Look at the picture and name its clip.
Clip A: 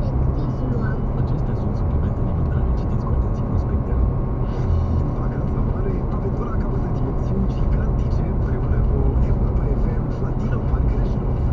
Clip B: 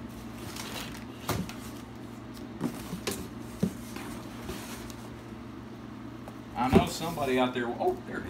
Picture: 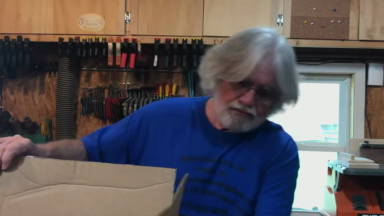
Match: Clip B